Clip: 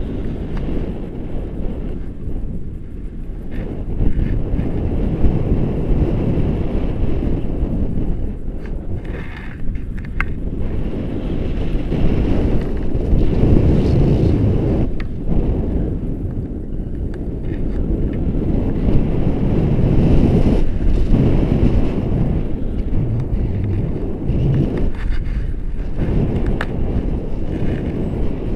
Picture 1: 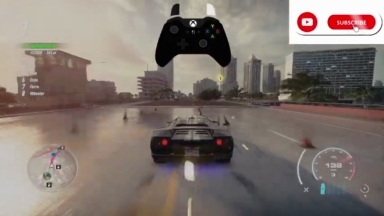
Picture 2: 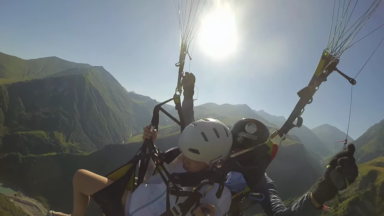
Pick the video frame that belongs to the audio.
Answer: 2